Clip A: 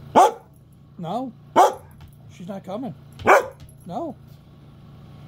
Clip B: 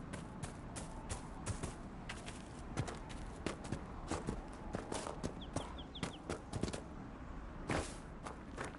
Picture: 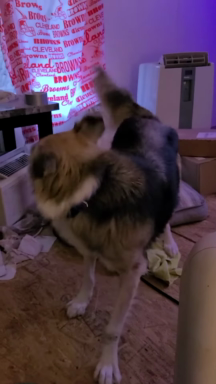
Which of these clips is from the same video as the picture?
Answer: A